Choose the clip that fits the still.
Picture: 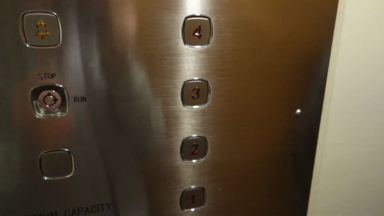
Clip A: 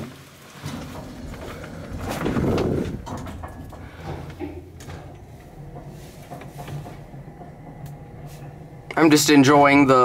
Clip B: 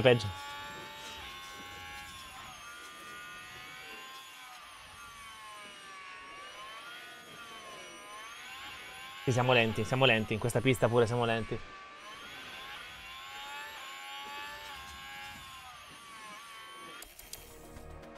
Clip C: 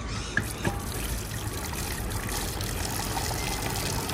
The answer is A